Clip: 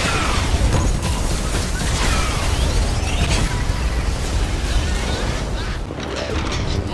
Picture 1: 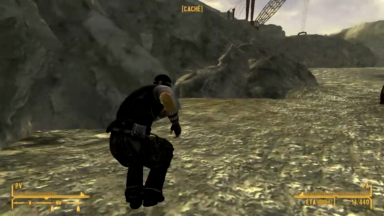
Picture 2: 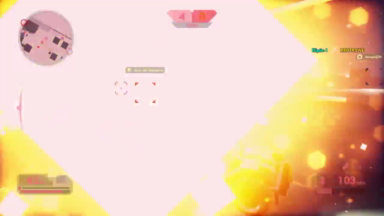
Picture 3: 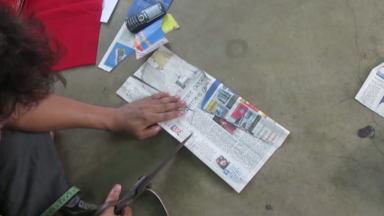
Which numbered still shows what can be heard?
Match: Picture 2